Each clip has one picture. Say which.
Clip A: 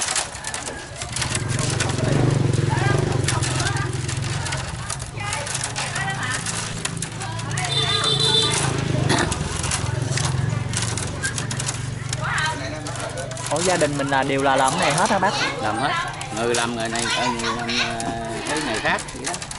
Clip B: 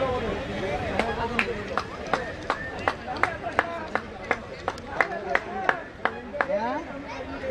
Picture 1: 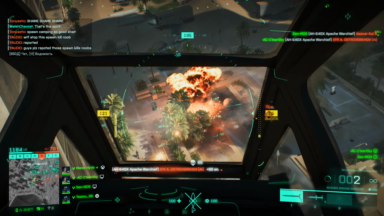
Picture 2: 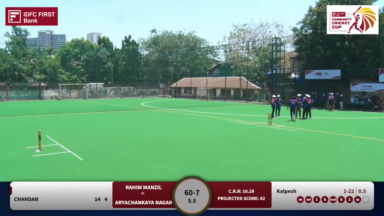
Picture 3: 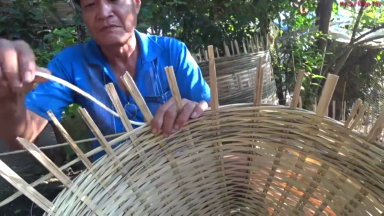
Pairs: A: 3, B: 2